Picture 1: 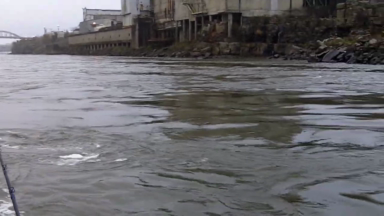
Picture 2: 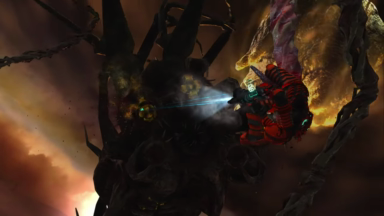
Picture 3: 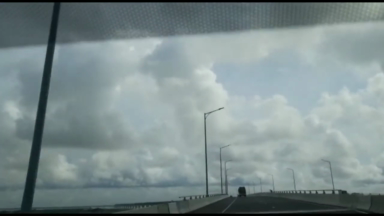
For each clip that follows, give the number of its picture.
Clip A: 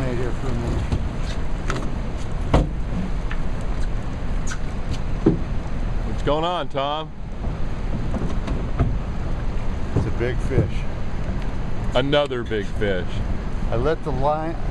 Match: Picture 1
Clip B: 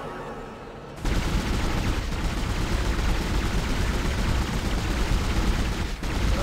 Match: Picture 2